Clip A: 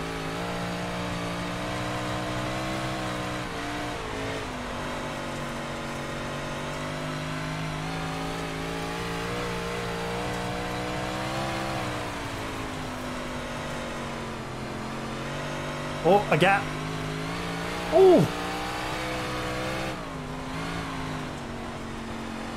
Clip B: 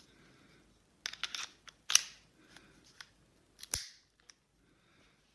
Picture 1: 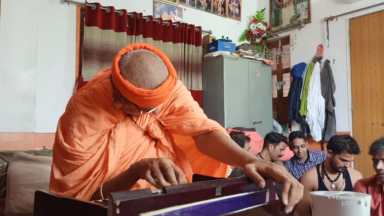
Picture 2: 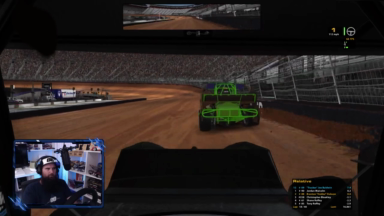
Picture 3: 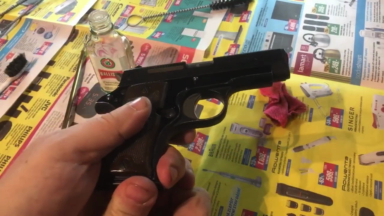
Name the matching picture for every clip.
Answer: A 2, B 3